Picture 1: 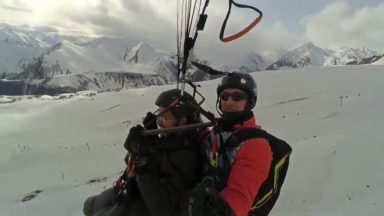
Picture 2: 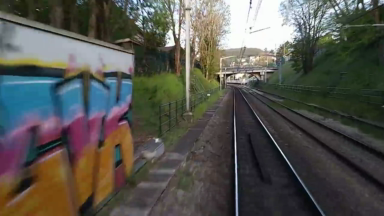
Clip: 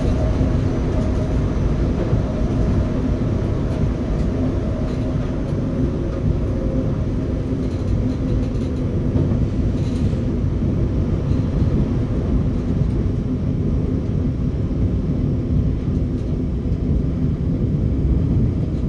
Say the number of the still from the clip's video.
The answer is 2